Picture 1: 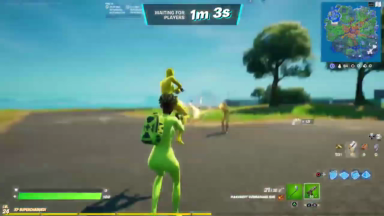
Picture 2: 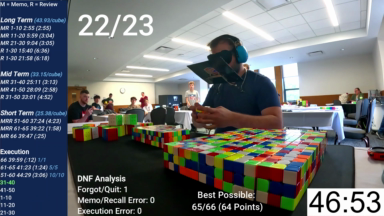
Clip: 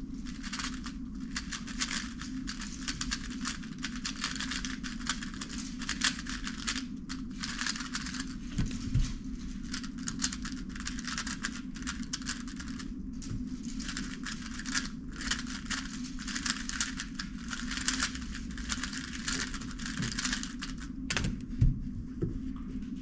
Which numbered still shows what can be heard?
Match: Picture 2